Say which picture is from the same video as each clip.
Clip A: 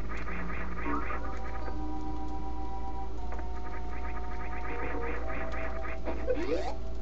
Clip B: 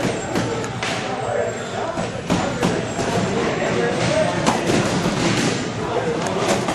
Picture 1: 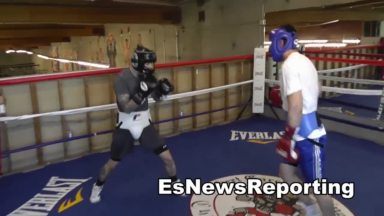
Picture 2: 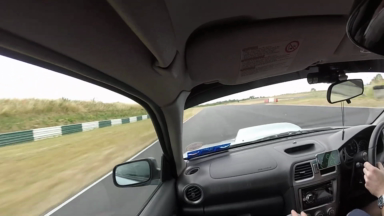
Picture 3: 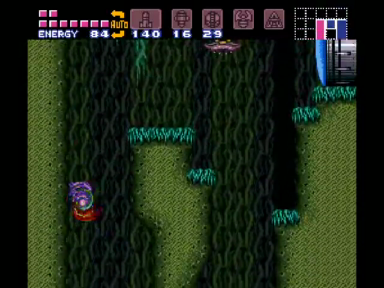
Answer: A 3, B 1